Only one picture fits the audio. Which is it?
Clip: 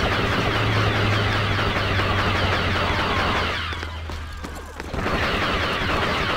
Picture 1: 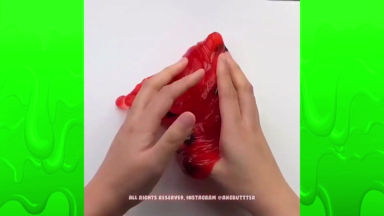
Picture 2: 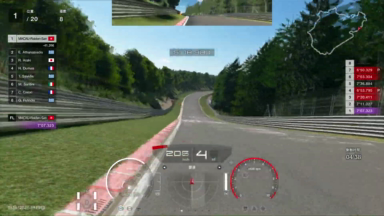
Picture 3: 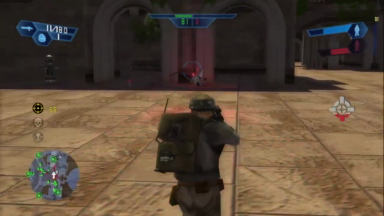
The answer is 3